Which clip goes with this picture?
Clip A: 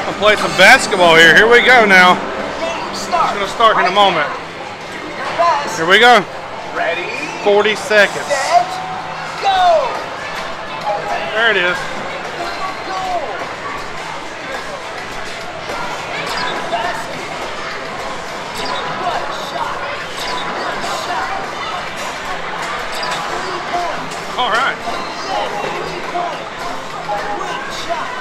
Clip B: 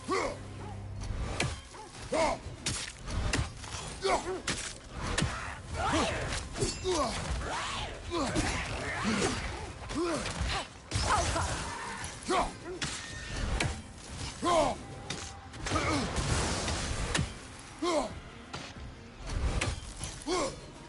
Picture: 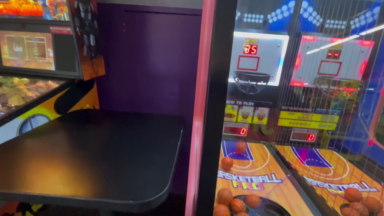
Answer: A